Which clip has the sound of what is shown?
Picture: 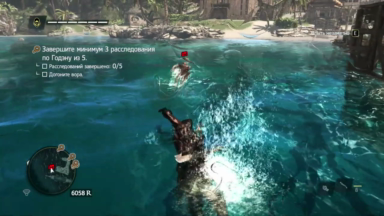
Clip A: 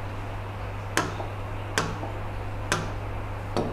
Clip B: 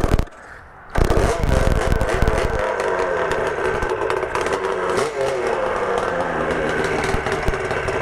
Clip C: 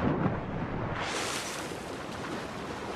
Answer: C